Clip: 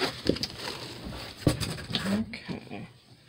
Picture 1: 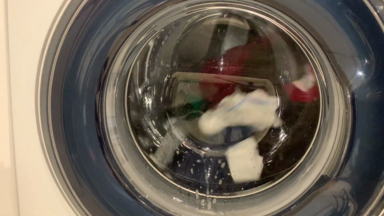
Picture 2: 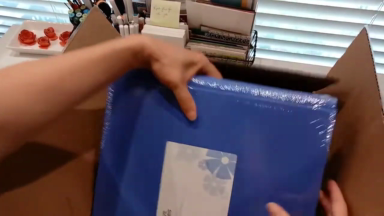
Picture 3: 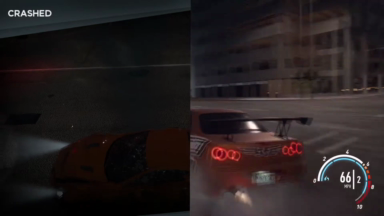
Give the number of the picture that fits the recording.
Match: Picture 2